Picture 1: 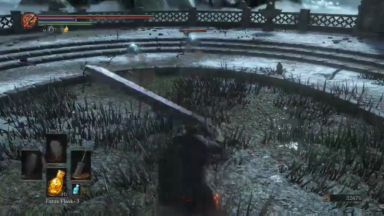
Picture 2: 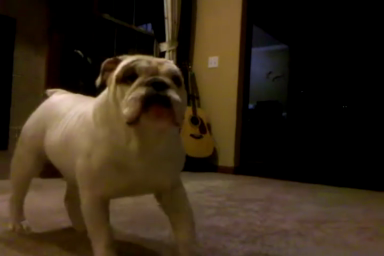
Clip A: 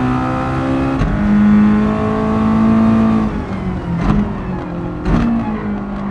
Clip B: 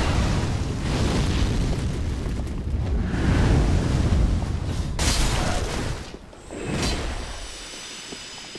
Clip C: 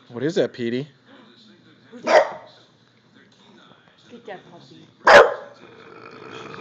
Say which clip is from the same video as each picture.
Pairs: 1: B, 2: C